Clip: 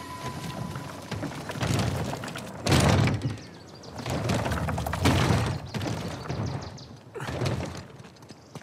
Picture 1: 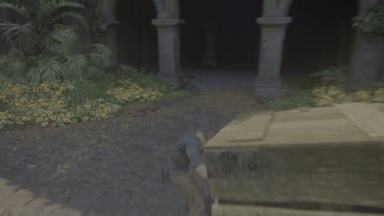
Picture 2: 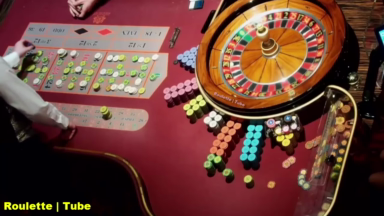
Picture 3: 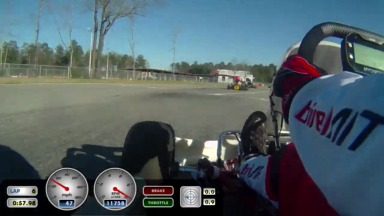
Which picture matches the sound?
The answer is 1